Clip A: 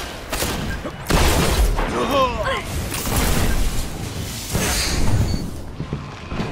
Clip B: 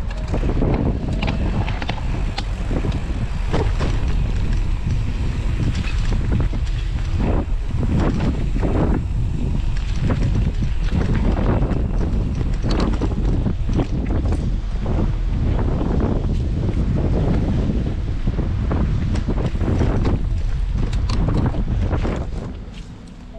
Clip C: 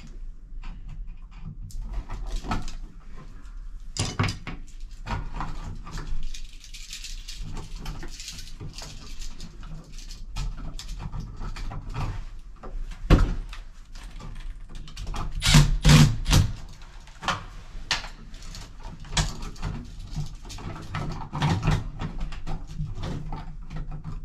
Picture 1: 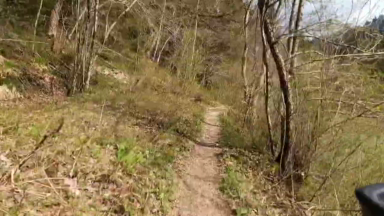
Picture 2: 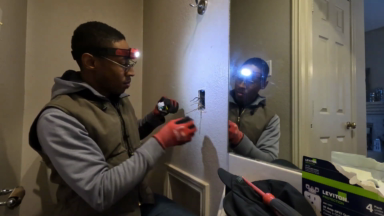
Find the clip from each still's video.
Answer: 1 B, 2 C